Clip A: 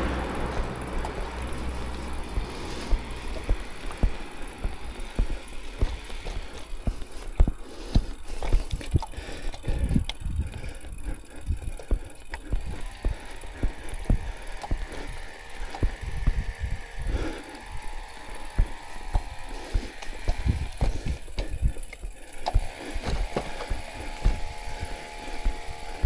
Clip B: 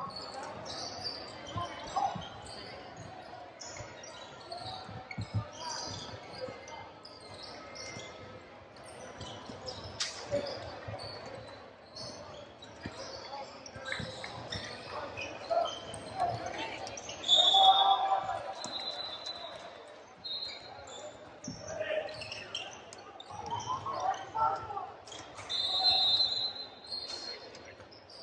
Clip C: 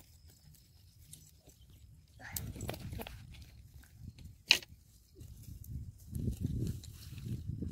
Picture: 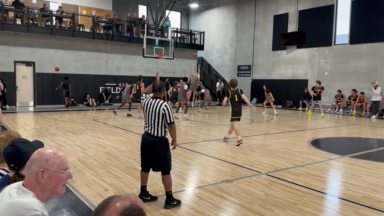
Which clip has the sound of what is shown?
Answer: B